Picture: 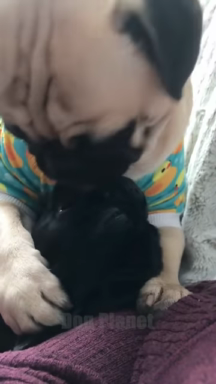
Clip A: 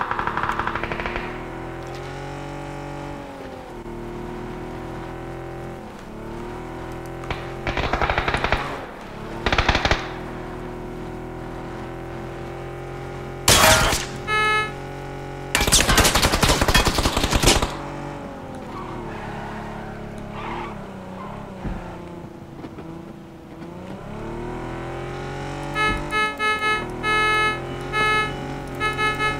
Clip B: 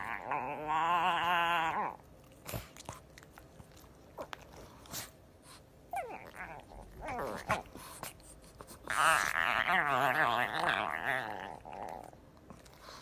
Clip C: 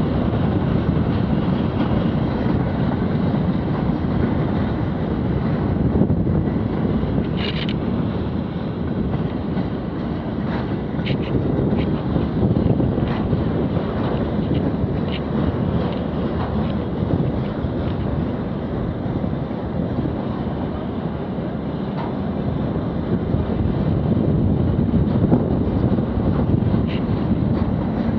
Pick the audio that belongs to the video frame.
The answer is B